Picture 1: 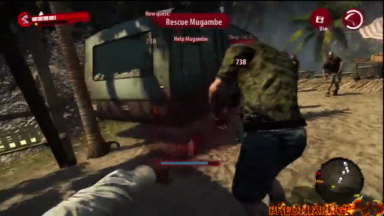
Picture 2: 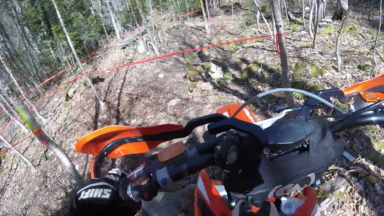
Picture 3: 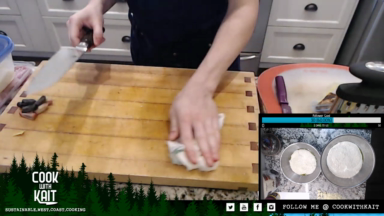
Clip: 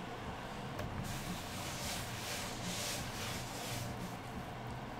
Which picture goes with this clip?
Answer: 3